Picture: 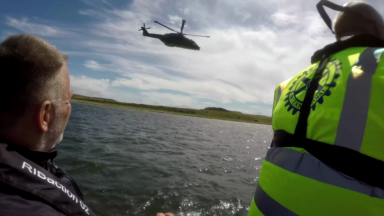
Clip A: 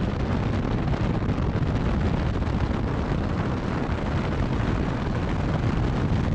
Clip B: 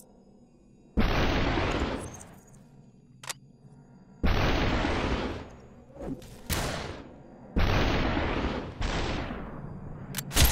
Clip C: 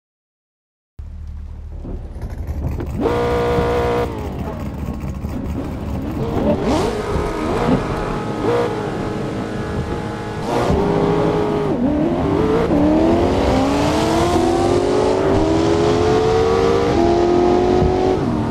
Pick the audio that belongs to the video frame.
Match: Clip A